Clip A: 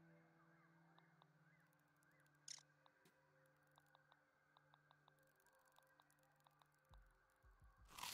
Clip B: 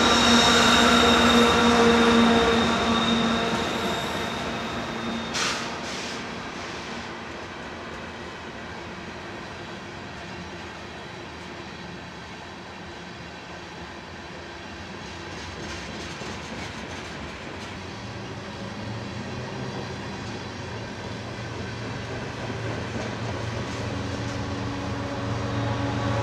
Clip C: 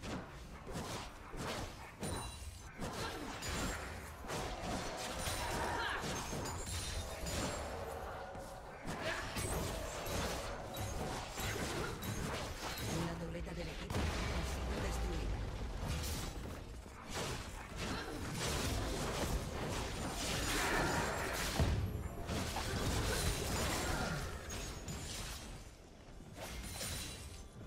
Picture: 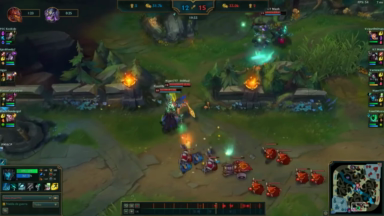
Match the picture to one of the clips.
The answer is C